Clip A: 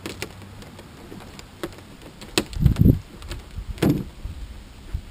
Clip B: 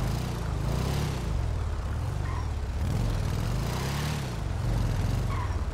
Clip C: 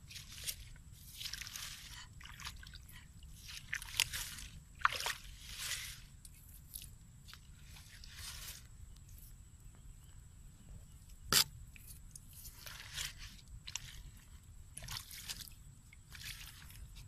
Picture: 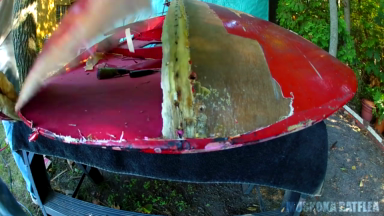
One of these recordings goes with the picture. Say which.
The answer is A